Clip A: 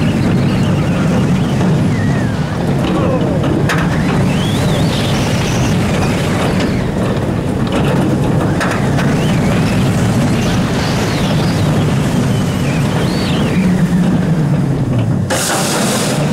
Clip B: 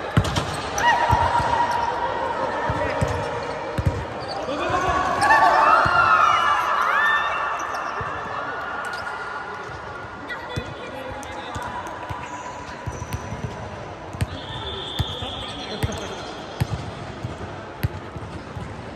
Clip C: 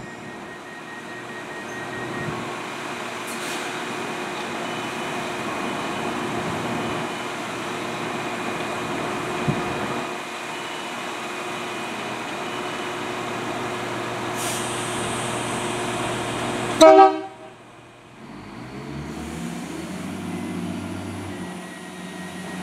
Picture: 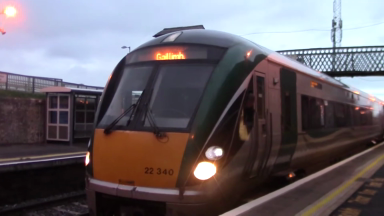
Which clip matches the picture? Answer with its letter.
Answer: C